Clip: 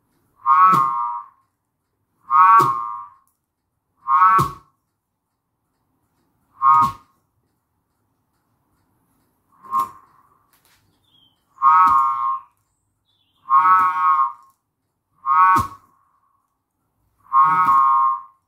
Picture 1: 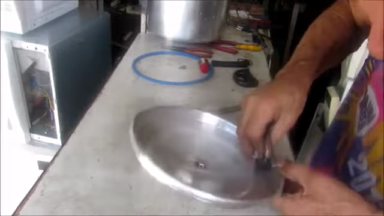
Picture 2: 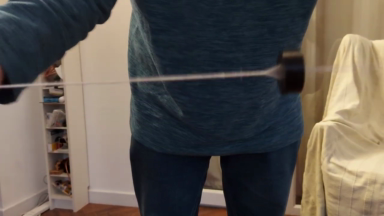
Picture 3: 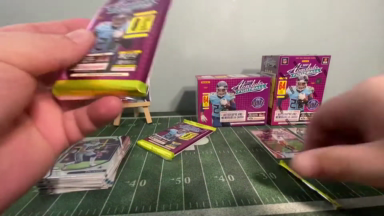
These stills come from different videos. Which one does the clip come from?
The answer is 2